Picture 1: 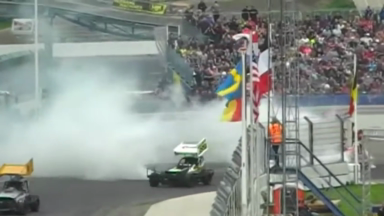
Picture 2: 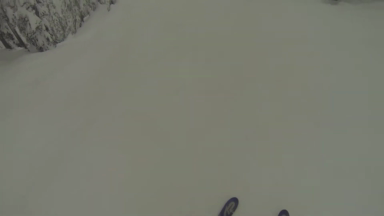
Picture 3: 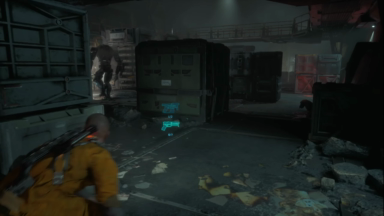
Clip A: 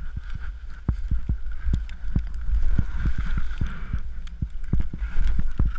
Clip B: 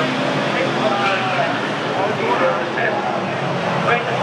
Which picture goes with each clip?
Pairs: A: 2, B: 1